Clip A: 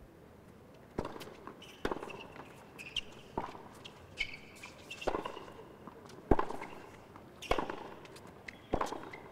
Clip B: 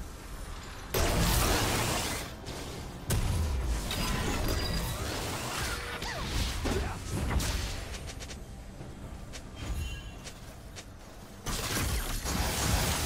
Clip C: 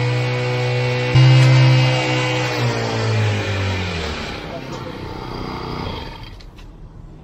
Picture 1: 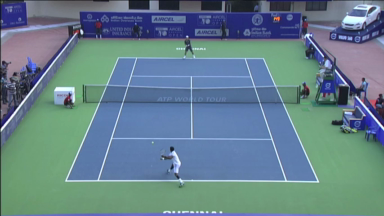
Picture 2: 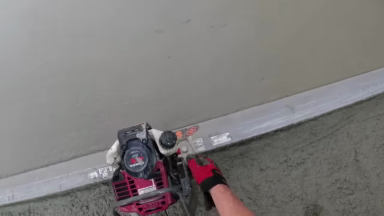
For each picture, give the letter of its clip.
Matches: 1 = A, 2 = C